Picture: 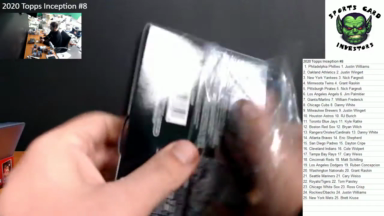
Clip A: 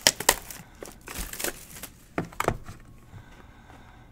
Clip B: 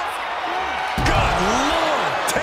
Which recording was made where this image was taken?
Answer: A